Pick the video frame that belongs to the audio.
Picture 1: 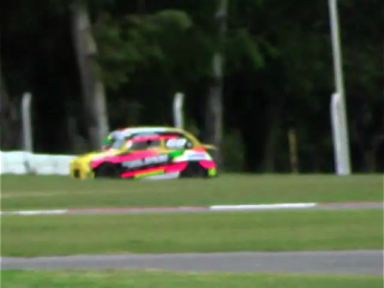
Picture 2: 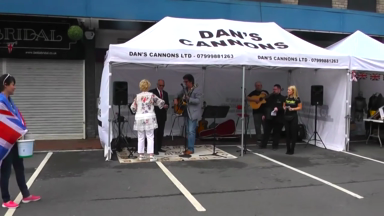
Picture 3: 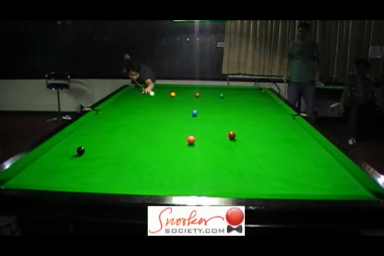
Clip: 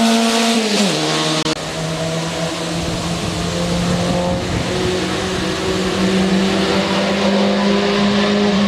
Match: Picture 1